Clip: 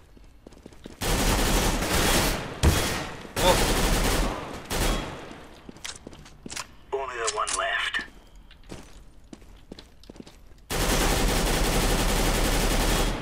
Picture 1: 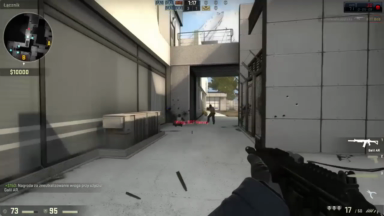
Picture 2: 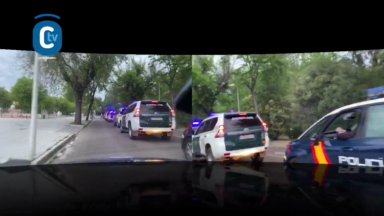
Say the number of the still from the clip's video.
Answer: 1